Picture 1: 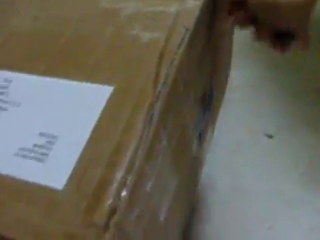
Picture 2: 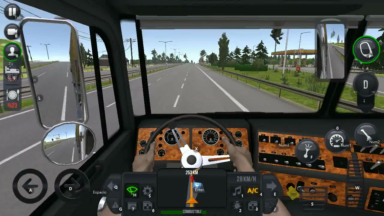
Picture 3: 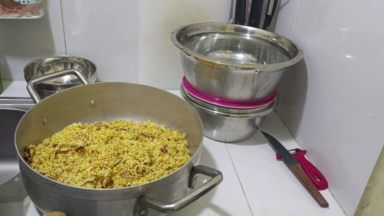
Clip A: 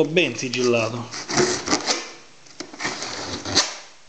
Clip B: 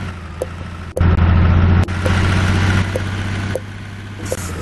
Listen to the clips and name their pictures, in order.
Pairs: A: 1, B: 2